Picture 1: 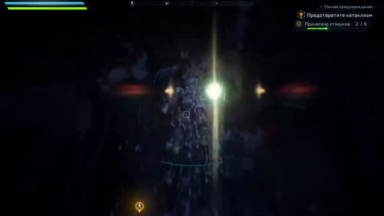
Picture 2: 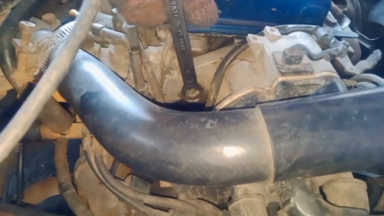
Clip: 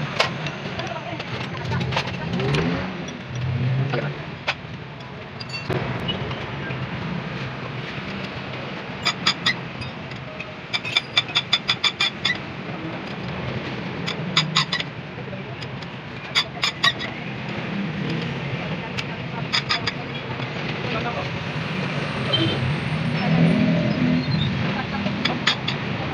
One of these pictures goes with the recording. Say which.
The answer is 2